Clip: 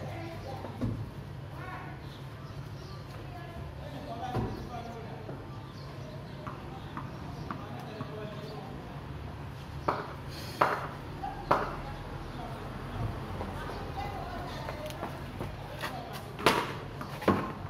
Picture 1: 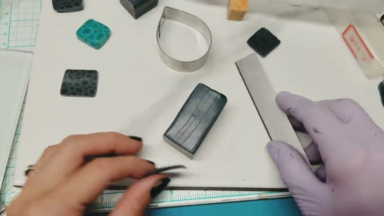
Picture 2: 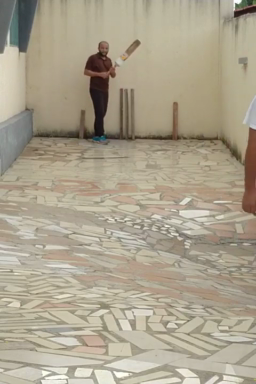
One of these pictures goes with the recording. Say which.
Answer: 2